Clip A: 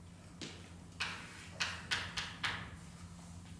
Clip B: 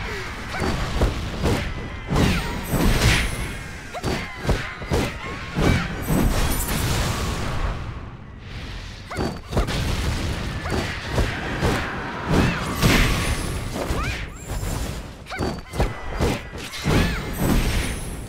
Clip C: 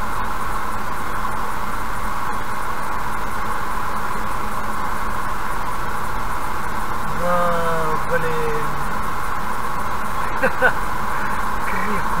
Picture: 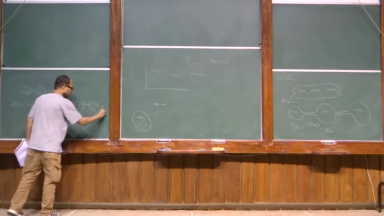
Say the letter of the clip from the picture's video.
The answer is A